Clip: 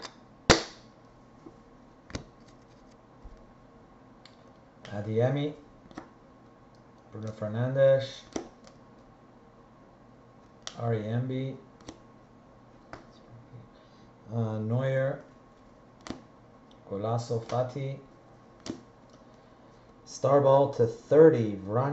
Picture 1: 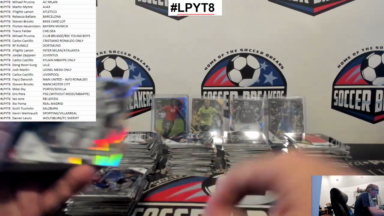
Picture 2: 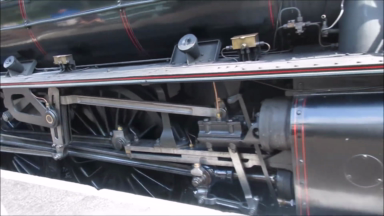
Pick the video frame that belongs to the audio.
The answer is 1